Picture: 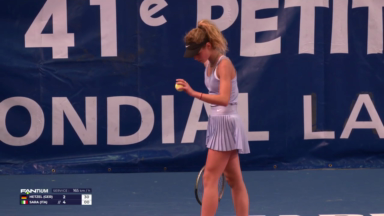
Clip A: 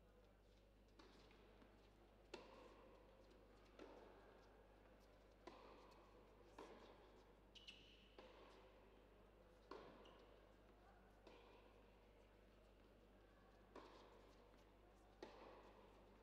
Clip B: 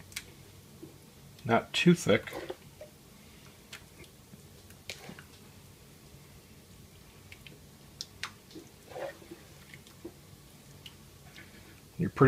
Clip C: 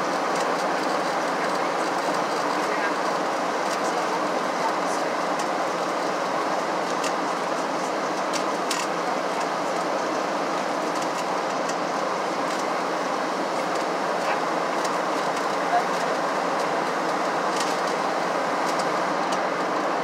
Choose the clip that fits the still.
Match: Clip A